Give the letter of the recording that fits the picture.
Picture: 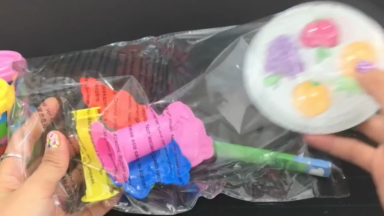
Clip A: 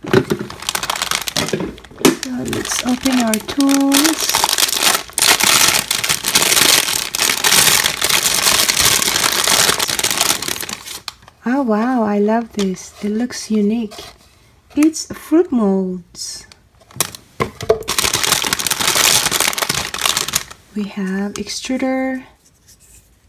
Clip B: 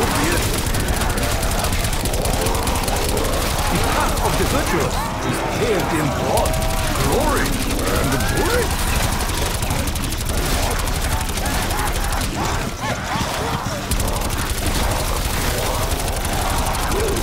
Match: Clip A